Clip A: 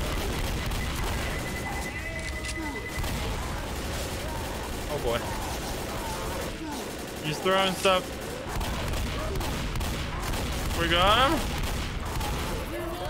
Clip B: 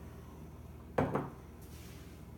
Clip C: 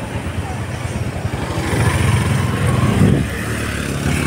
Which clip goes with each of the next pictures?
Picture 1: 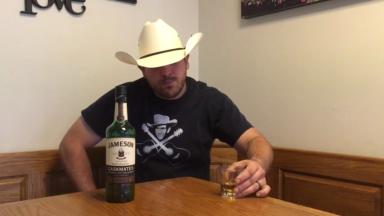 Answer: B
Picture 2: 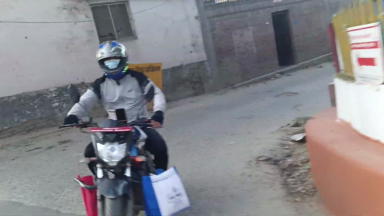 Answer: C